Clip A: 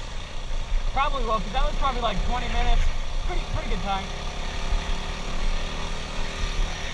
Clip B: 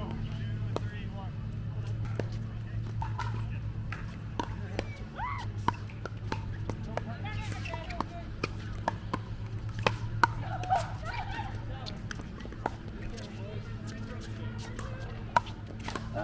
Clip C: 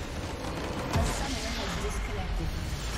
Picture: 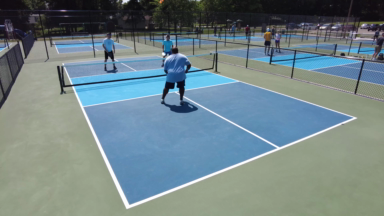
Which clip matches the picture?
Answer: B